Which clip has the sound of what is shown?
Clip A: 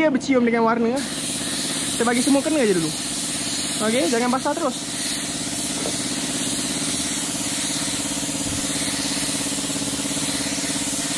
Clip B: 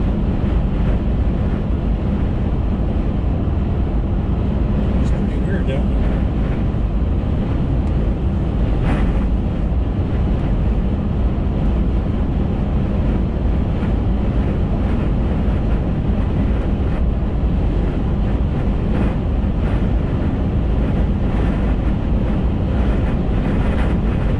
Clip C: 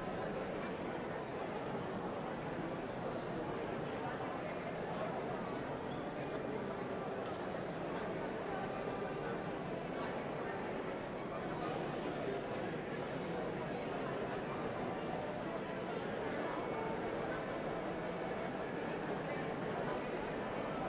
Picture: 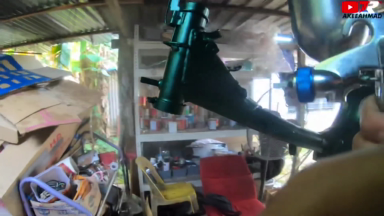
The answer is A